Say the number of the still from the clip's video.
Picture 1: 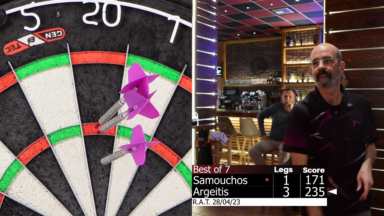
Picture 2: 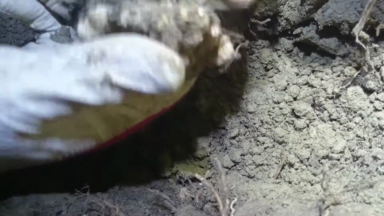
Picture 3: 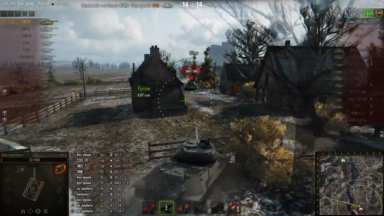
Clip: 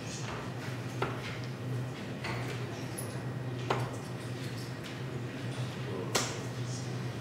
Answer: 1